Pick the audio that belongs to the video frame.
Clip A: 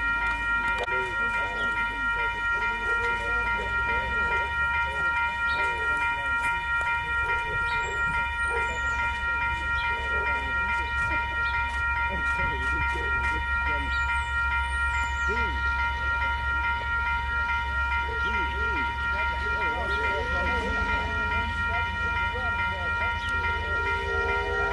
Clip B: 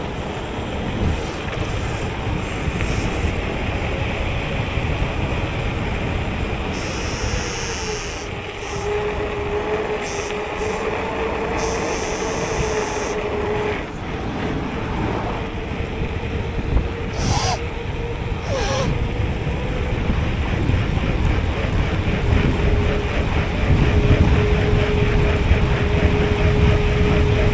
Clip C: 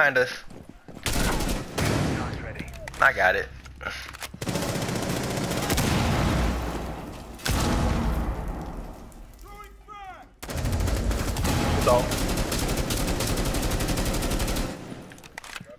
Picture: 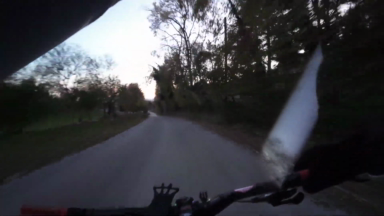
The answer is B